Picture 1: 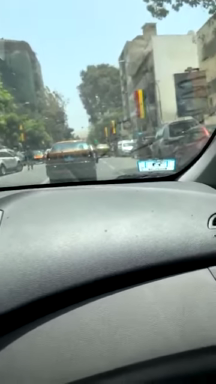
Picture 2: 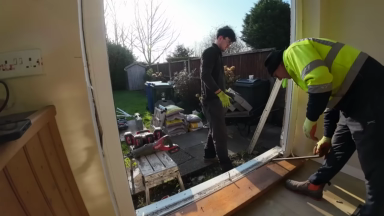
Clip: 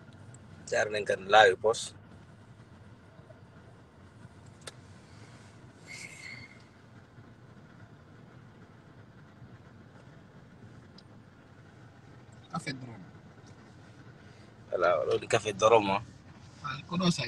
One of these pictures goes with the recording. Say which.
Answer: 1